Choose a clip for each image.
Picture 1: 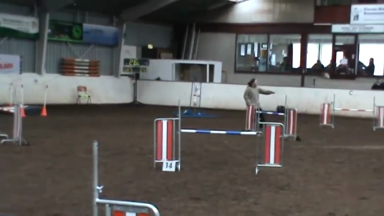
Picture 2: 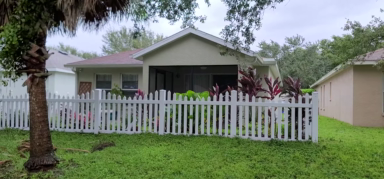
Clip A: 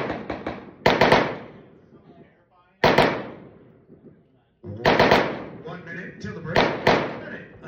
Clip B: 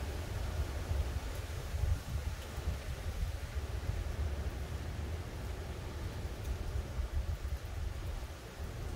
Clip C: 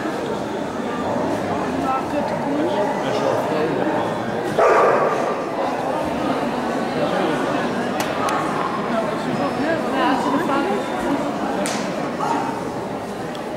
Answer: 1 C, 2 B